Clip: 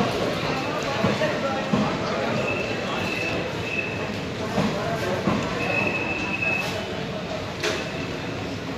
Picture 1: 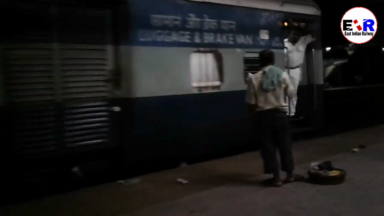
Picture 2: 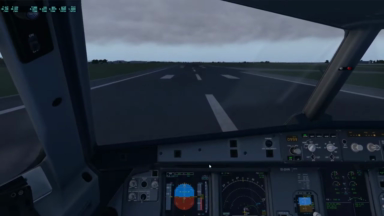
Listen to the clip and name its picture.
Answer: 1